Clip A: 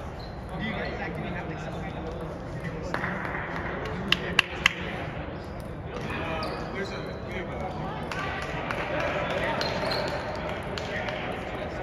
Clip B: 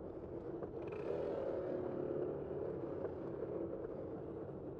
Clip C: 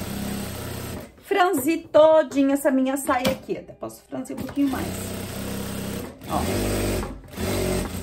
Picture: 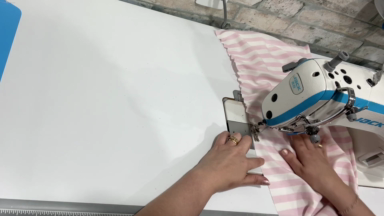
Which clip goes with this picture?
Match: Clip C